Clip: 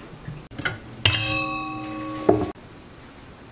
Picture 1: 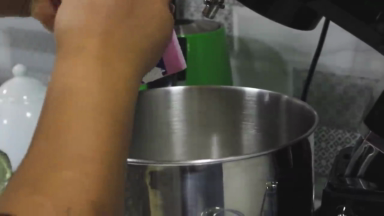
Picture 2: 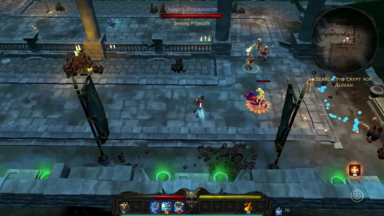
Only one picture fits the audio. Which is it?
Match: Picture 1